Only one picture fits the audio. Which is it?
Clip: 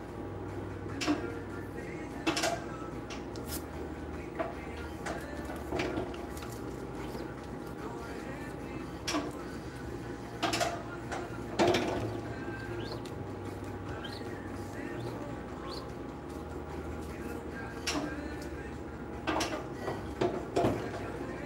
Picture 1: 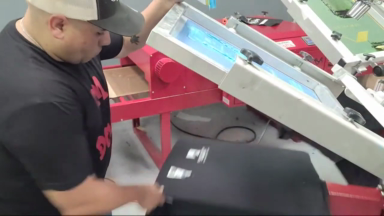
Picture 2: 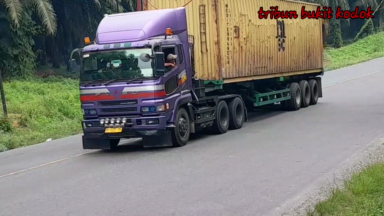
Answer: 1